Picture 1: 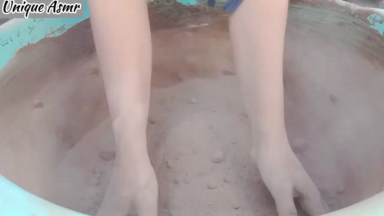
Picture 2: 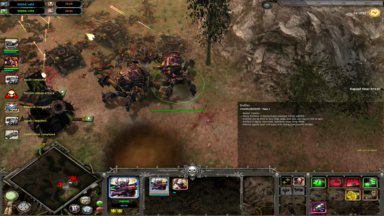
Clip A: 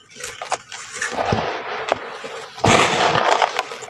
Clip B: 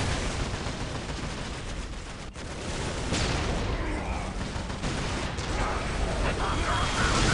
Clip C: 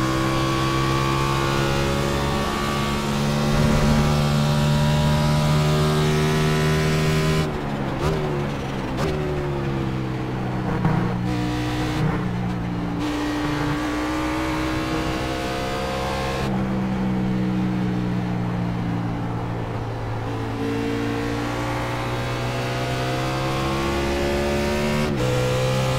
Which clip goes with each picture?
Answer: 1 A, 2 B